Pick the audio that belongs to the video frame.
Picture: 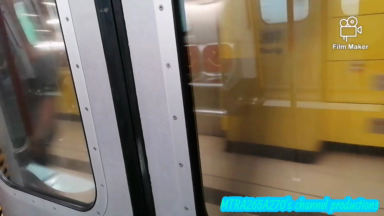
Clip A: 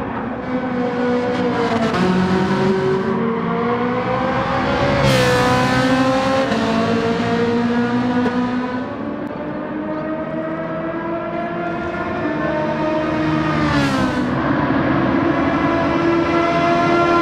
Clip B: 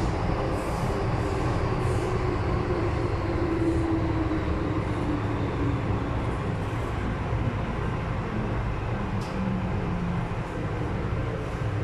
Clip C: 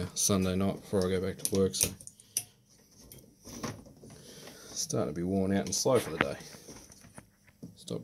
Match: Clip B